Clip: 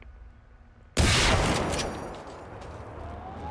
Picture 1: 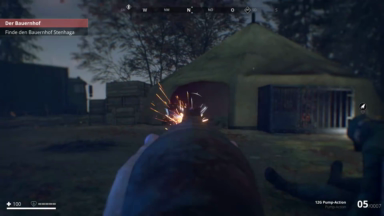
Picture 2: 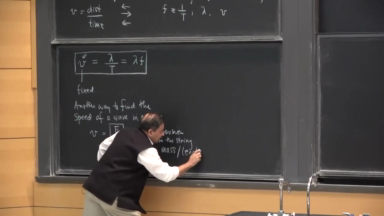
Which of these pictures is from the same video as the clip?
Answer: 1